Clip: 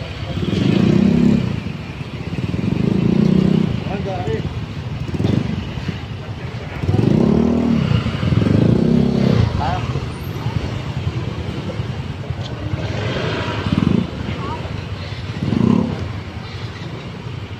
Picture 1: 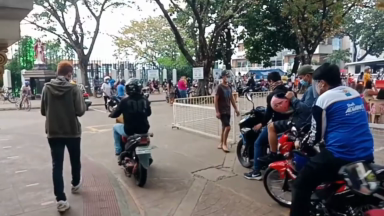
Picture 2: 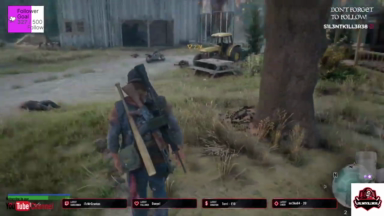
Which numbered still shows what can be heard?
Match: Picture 1